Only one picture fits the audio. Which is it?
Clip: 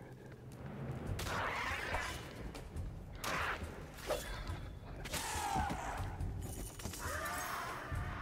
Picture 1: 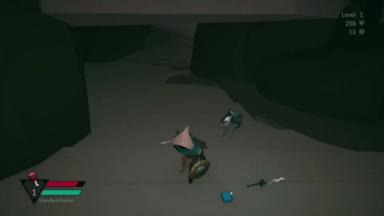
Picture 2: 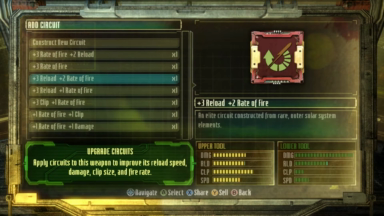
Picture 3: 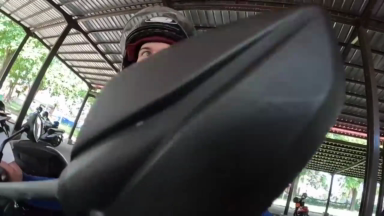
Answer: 1